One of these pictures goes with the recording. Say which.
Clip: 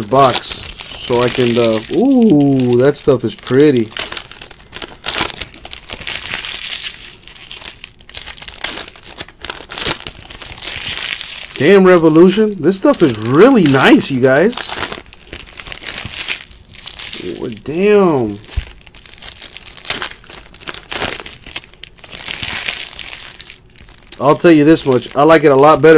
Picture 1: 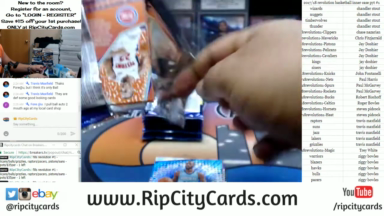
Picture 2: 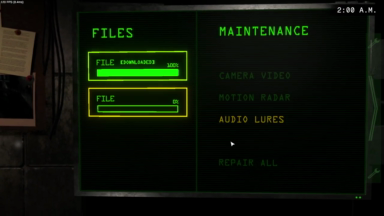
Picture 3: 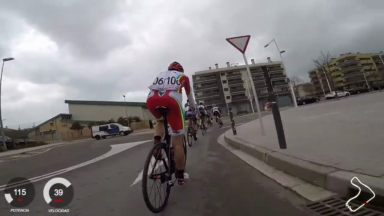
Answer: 1